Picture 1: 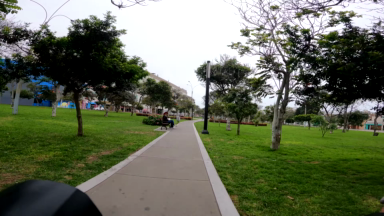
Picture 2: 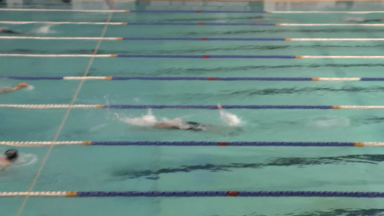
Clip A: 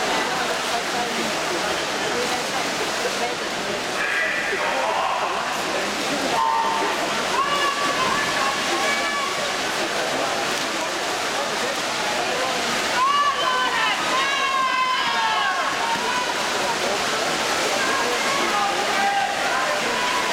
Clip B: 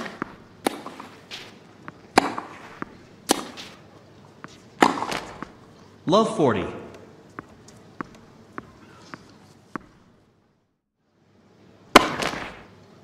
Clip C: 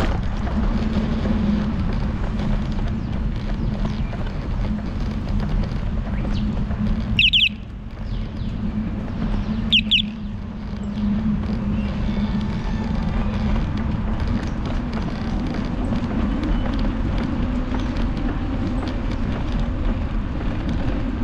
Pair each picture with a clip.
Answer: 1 C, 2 A